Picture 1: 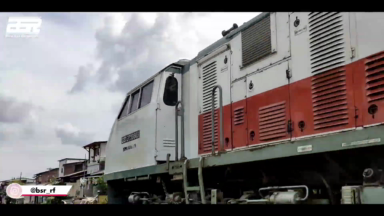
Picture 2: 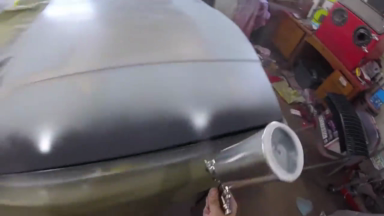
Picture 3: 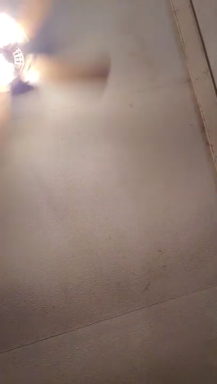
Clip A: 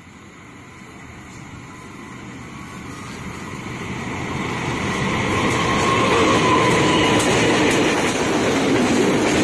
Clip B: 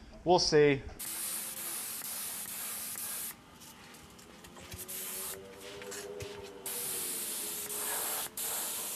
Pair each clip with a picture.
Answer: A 1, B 2